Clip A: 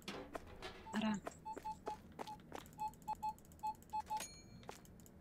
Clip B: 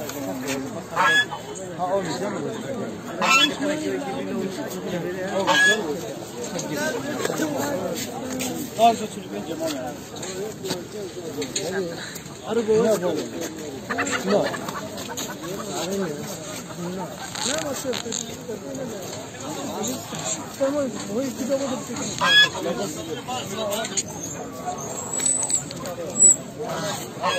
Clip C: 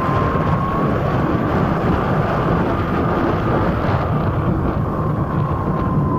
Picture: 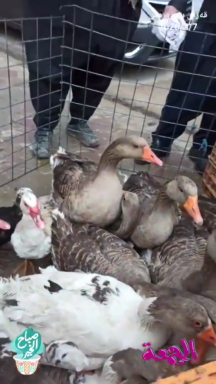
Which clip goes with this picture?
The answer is B